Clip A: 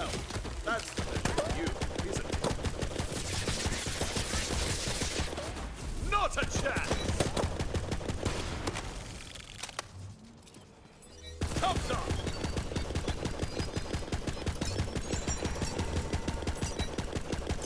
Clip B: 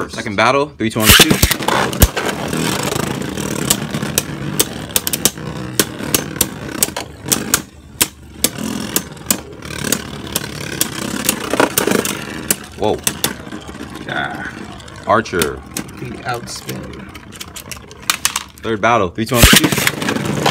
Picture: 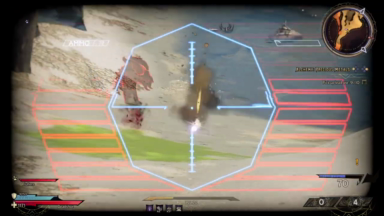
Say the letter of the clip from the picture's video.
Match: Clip A